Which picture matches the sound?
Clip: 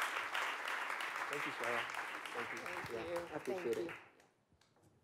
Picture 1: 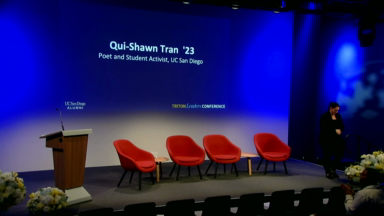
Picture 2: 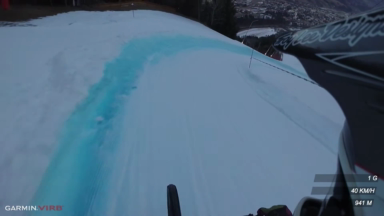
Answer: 1